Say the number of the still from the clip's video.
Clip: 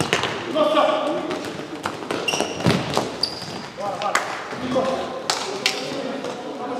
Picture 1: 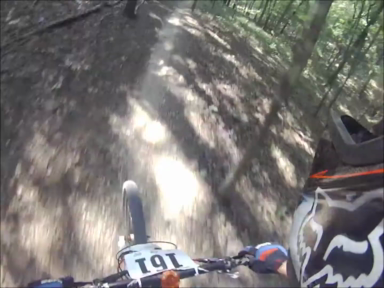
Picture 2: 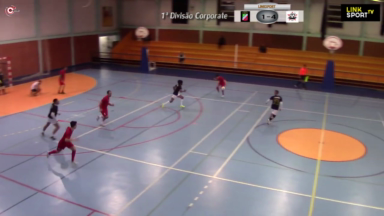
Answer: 2